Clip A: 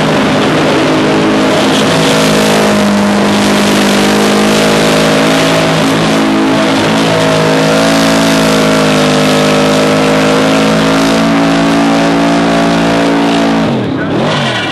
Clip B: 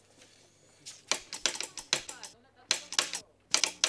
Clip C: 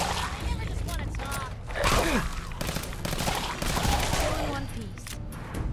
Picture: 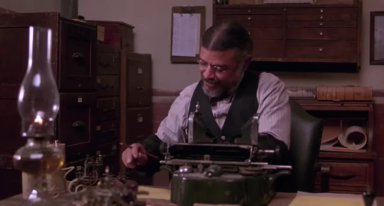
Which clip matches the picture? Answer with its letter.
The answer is B